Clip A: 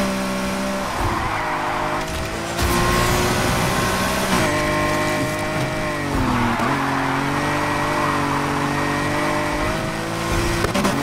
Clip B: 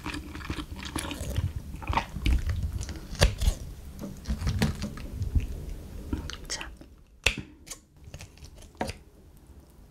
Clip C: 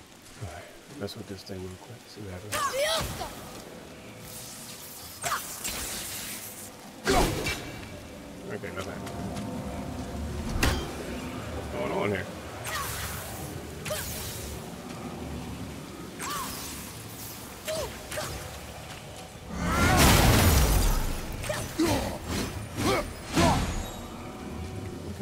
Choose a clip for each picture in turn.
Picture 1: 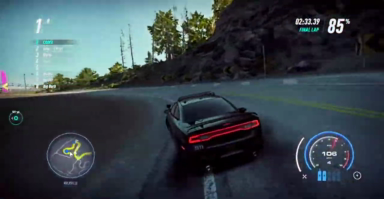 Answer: A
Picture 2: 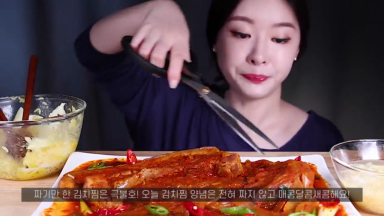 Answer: B